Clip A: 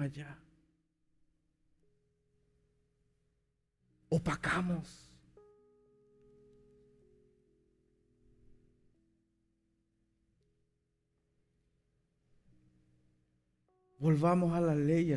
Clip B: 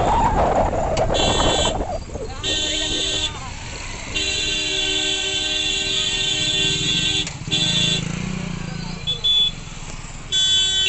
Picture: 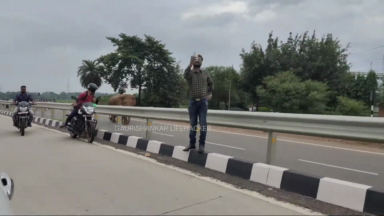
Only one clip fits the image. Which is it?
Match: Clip B